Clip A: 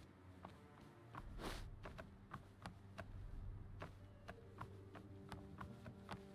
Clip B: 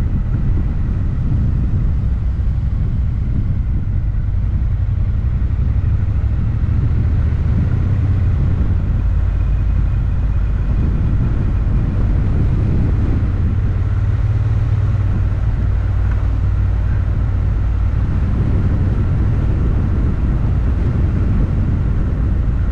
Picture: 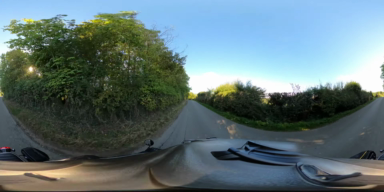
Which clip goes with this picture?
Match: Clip B